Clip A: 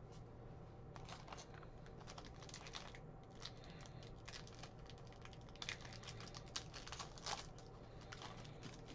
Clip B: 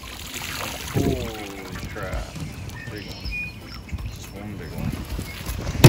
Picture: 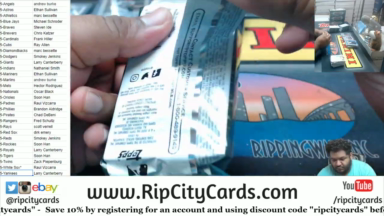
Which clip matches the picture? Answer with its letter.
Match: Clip A